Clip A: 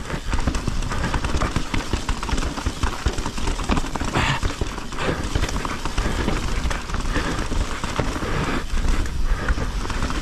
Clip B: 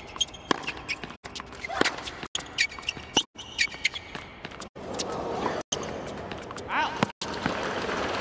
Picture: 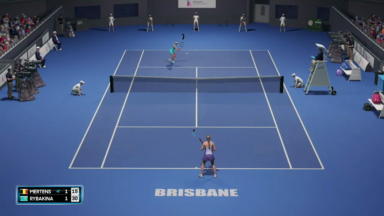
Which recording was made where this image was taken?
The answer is B